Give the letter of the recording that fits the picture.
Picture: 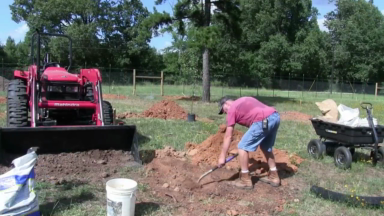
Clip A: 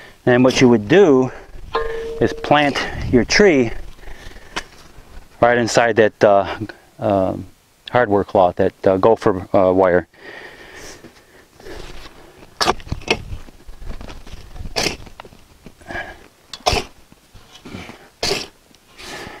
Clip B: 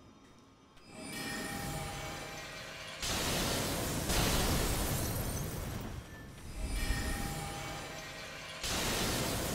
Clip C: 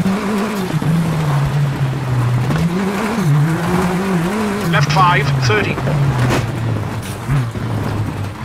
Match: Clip A